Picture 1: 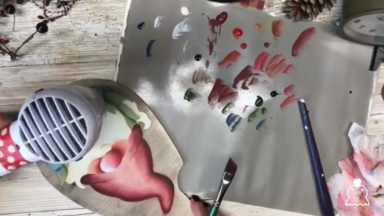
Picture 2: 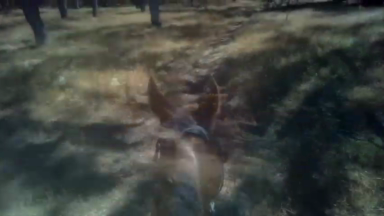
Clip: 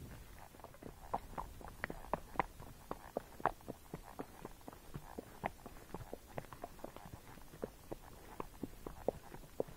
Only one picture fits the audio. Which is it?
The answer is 2